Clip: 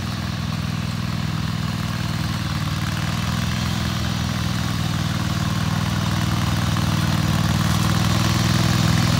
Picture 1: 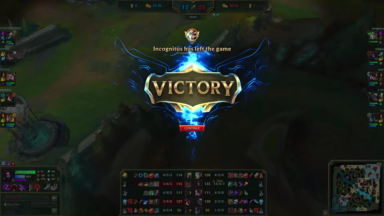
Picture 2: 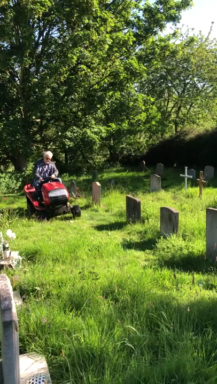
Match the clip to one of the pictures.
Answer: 2